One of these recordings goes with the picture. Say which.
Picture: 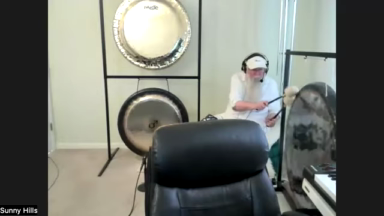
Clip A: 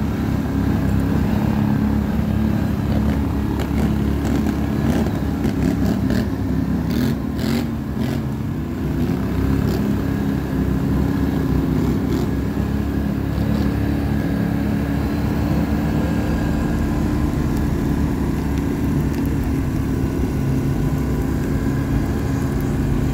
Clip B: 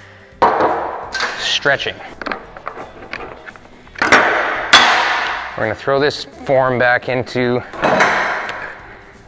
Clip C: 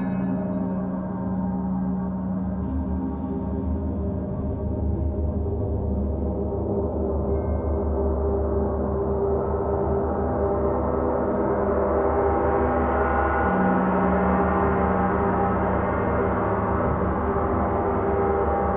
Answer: C